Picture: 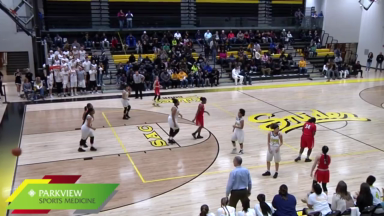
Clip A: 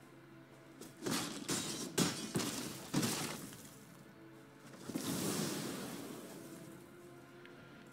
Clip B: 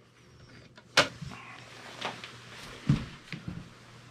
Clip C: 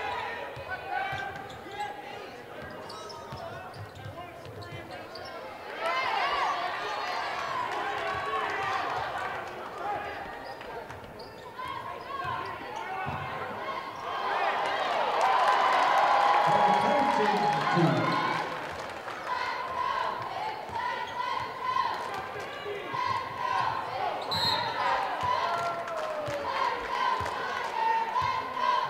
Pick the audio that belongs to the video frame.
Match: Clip C